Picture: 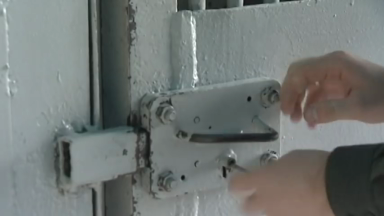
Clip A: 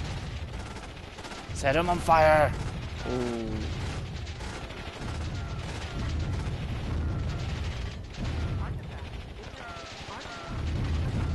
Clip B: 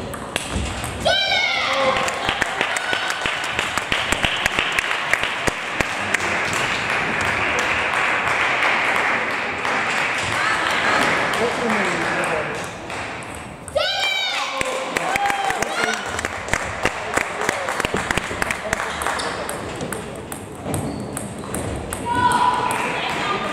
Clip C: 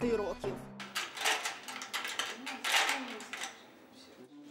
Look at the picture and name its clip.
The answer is C